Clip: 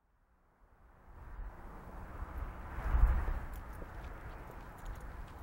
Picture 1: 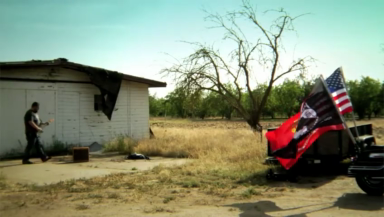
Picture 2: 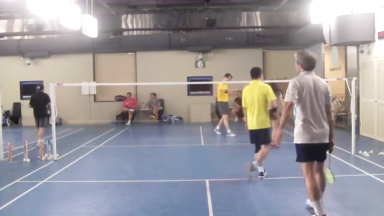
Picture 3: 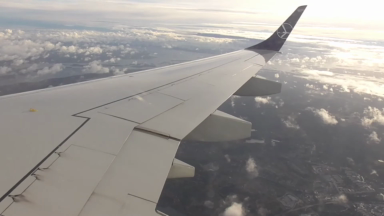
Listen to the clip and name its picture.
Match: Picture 1